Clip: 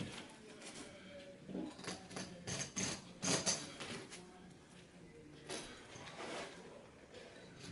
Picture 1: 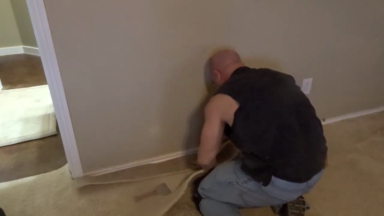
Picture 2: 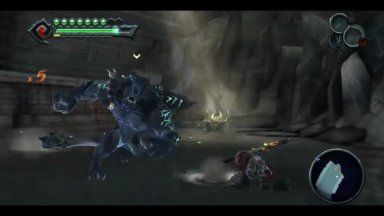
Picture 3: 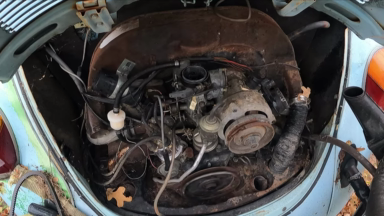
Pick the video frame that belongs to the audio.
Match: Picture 1